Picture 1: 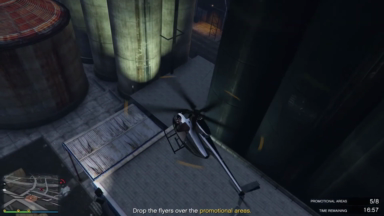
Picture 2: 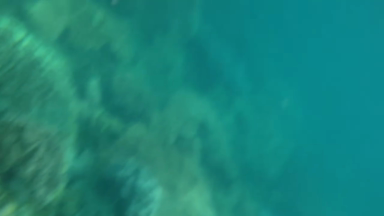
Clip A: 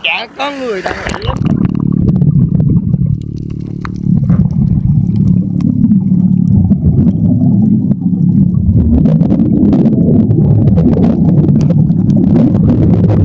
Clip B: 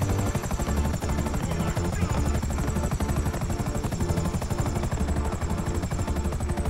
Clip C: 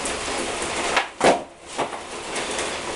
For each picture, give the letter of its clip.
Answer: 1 B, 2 A